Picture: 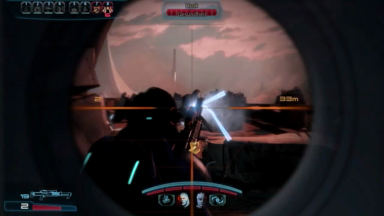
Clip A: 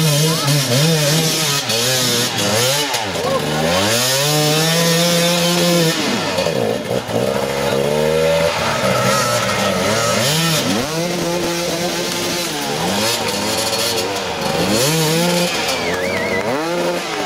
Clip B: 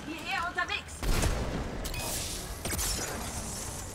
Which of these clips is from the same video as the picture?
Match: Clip B